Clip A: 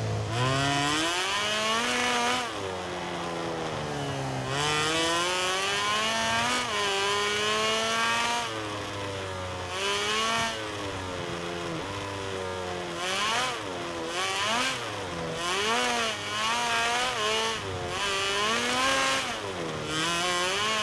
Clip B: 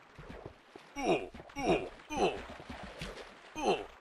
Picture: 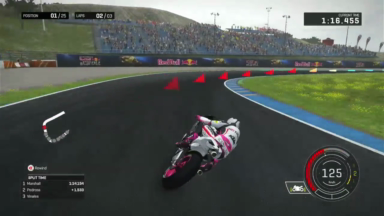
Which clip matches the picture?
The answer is A